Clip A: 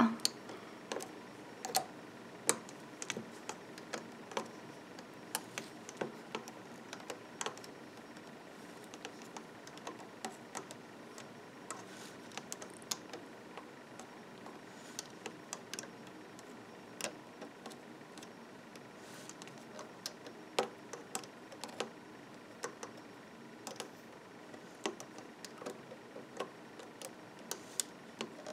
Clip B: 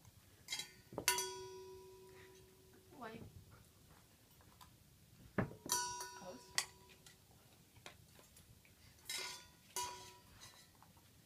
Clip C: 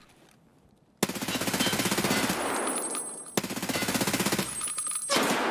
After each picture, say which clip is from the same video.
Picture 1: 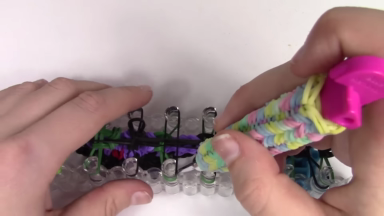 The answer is A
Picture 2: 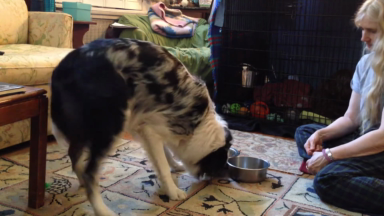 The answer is B